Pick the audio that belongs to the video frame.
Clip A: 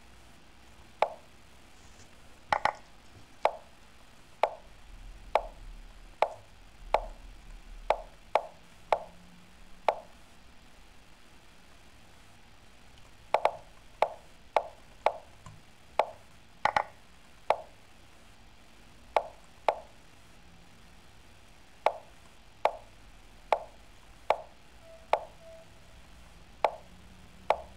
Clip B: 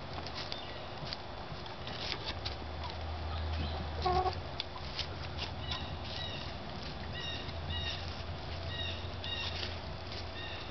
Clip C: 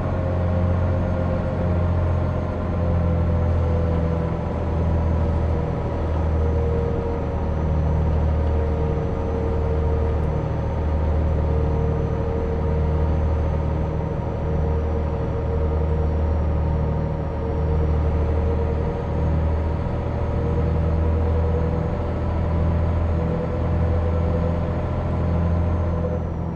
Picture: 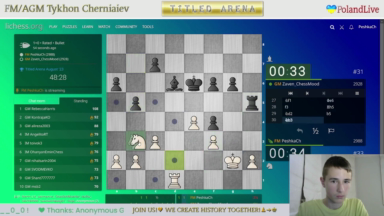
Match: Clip A